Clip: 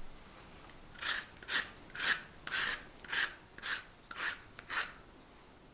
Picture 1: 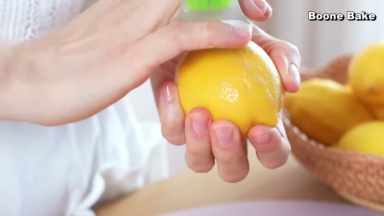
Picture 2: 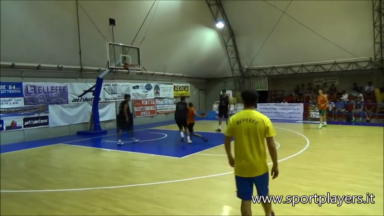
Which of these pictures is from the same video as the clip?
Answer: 1